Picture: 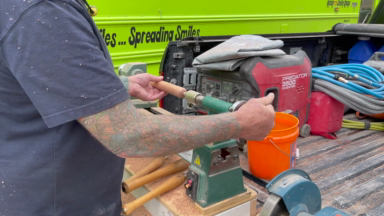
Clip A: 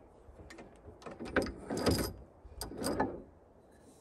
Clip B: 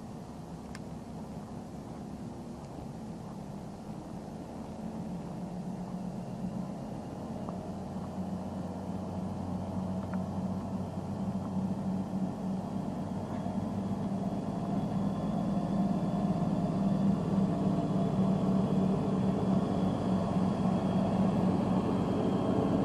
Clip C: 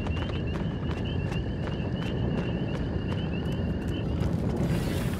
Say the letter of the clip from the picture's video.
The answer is A